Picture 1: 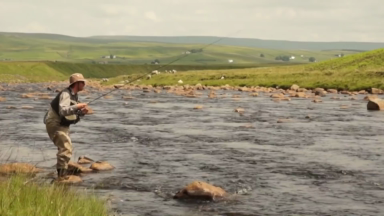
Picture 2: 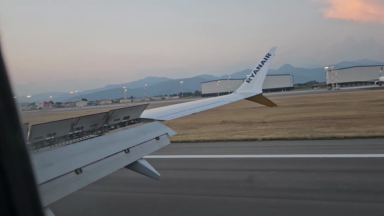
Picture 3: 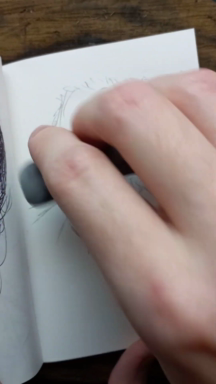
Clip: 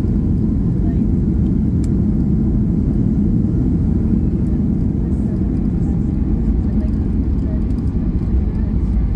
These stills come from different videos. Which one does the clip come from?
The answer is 2